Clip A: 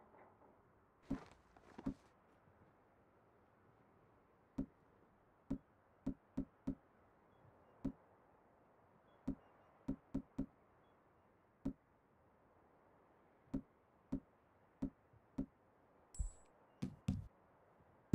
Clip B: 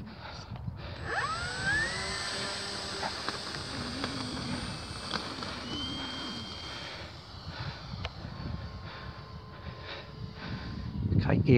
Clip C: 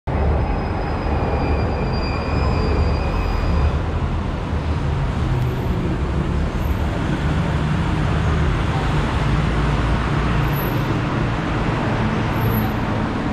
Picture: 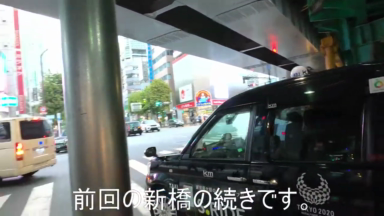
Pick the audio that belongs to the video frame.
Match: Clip C